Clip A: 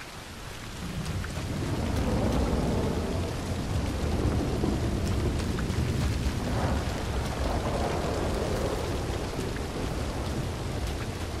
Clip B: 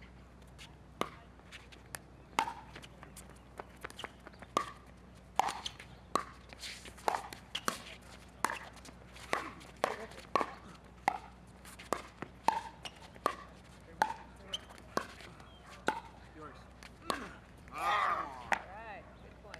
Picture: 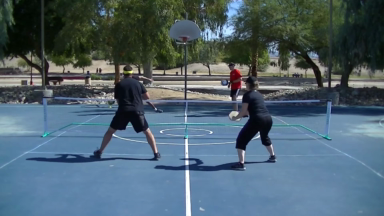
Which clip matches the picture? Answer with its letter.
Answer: B